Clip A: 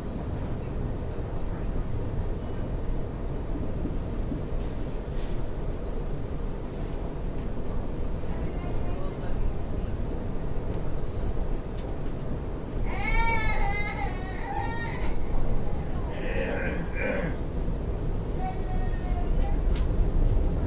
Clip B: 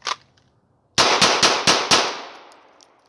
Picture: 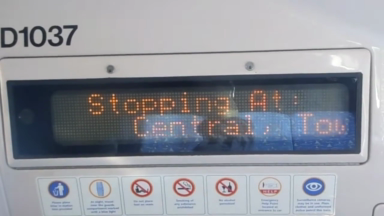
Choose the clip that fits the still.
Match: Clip A